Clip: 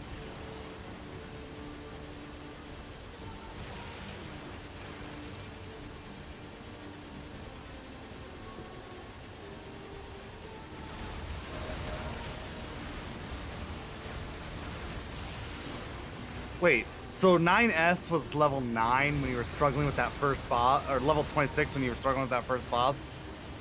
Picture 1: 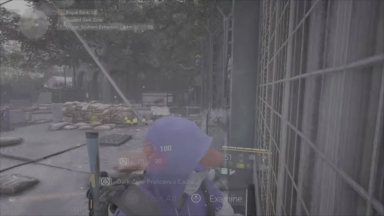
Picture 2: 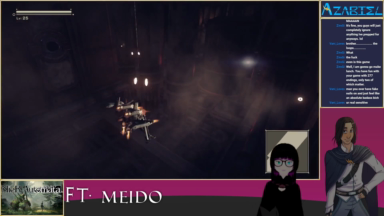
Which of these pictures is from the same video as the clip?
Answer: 2